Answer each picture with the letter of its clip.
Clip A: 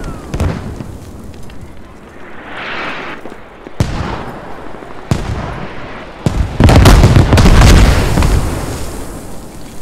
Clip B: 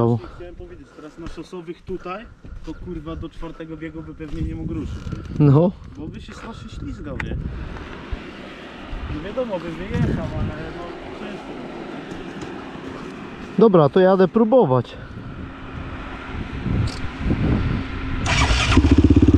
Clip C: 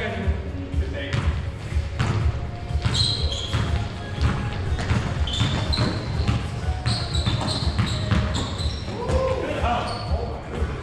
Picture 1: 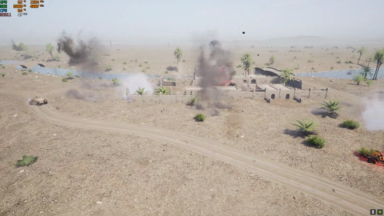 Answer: A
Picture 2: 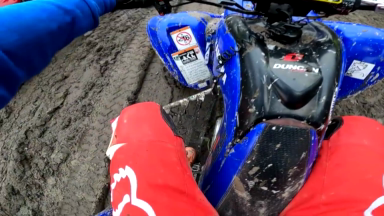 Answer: B